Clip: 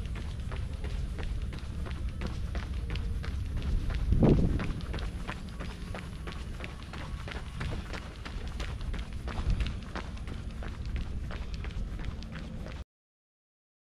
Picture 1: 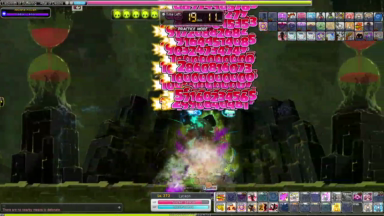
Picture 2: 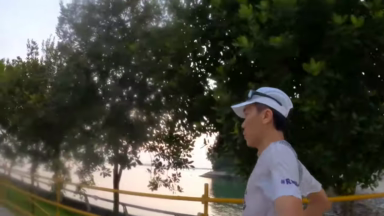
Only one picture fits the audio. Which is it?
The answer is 2